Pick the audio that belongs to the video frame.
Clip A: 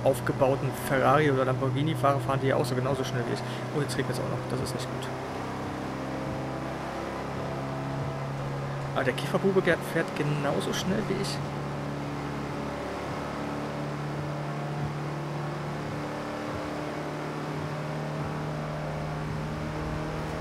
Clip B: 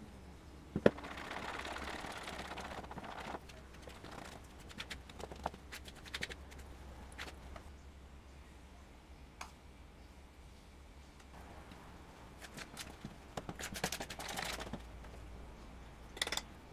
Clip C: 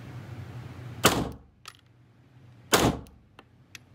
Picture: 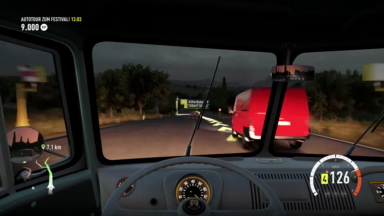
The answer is A